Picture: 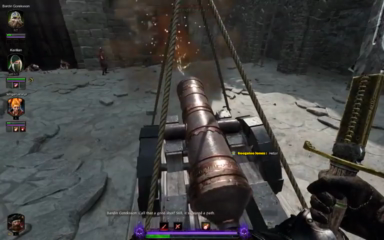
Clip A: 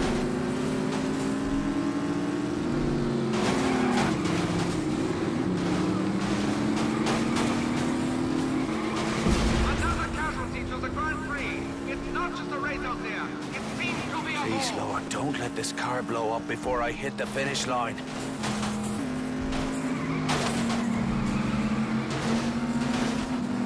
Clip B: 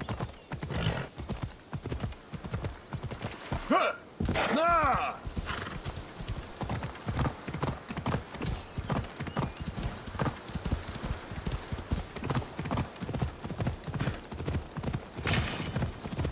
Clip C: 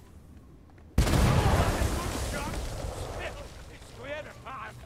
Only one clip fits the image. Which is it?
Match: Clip C